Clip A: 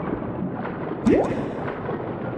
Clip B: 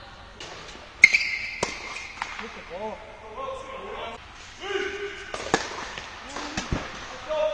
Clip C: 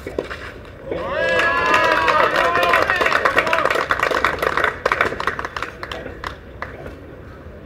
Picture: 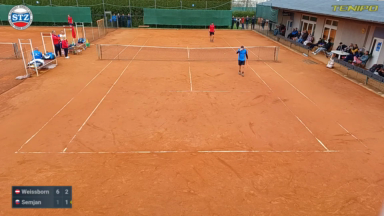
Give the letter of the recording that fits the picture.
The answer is C